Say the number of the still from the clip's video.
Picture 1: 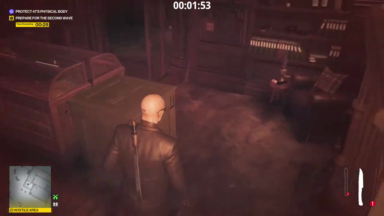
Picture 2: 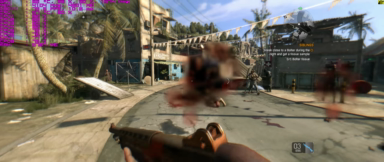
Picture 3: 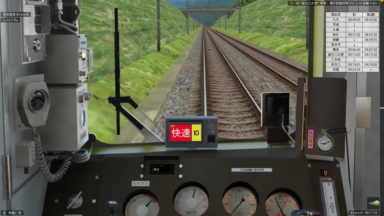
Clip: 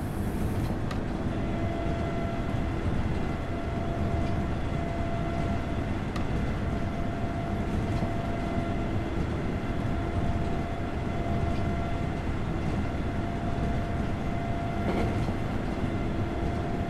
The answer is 3